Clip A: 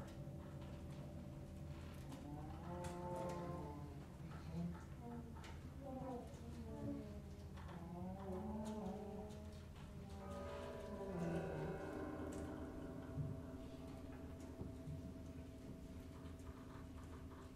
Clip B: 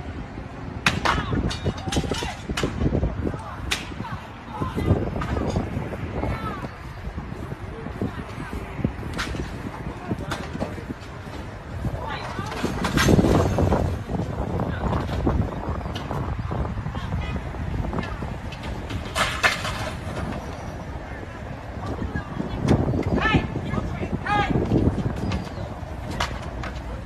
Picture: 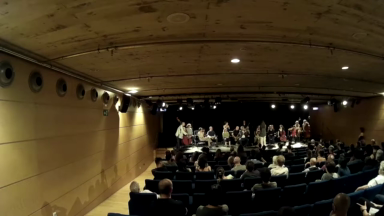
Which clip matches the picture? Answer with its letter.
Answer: A